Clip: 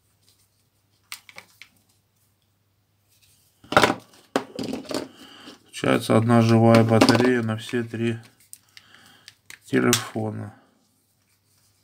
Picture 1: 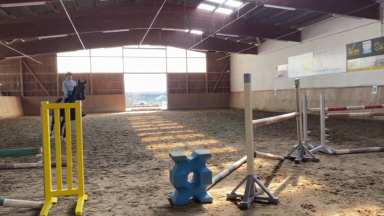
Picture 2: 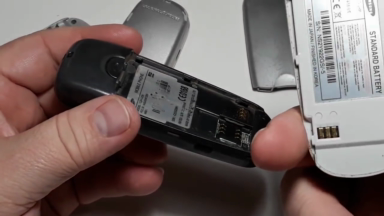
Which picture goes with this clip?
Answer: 2